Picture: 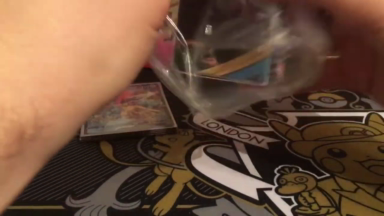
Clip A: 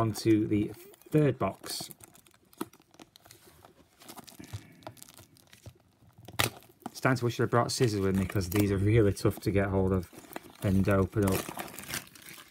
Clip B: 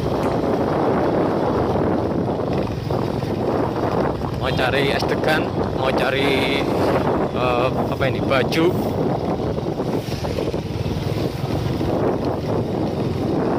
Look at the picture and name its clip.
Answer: A